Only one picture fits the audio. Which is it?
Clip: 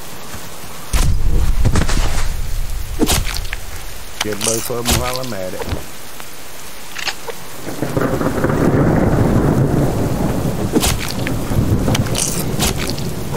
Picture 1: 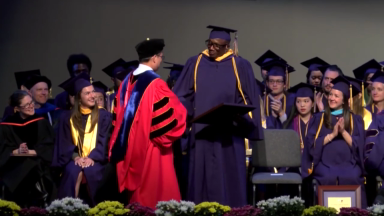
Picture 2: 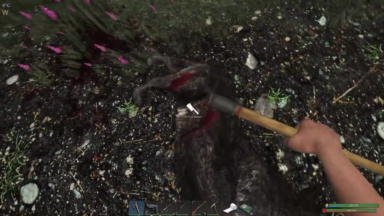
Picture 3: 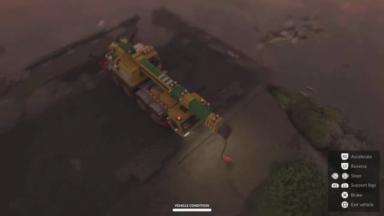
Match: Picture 2